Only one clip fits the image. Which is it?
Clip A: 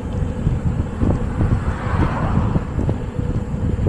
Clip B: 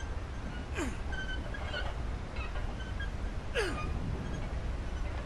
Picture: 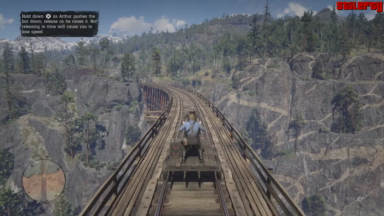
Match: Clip B